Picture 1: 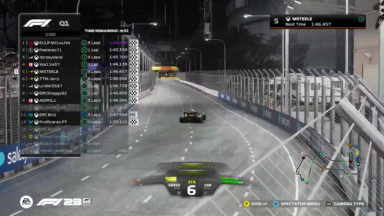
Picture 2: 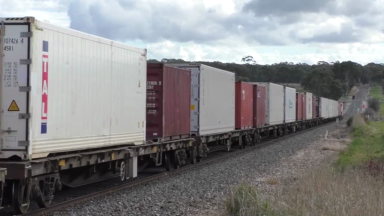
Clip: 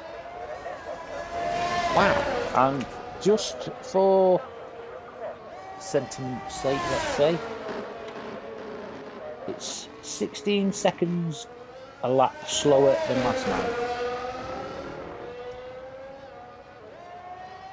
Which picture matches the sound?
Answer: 1